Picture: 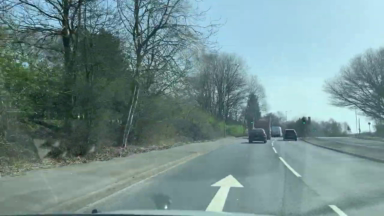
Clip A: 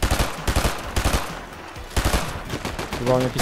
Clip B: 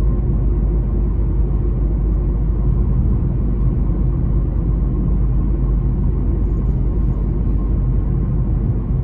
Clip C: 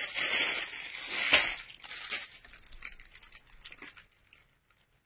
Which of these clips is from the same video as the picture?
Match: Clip B